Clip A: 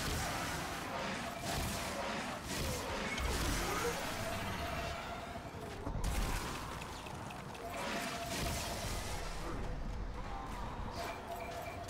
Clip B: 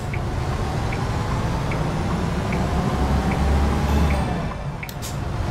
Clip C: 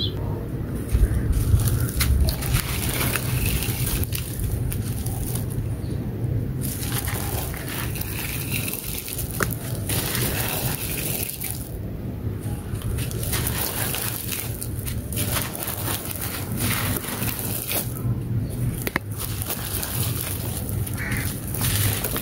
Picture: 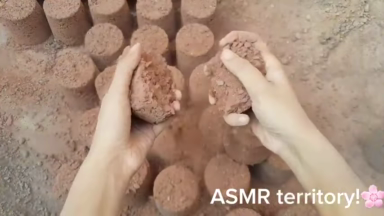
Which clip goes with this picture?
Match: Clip C